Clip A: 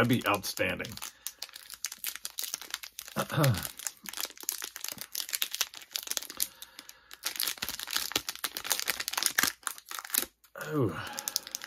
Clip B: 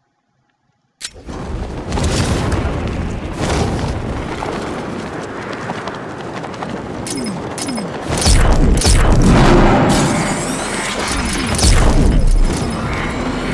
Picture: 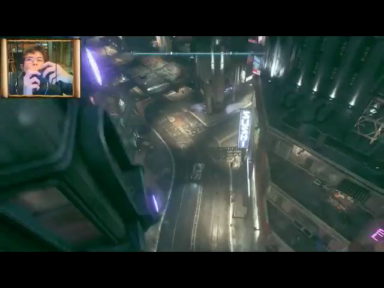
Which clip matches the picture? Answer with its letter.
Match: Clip B